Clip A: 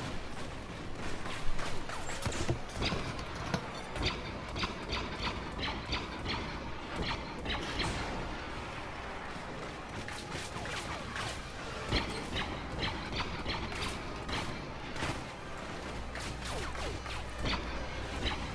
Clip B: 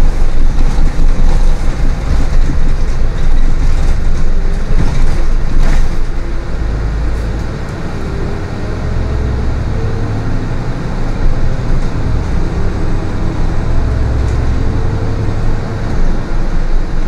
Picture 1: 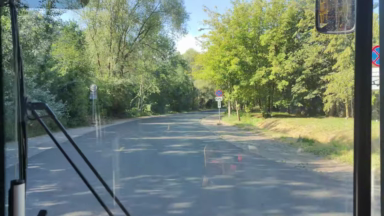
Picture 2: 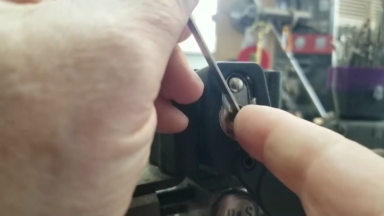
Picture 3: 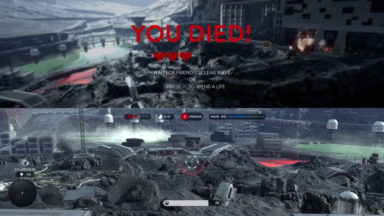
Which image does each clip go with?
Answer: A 3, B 1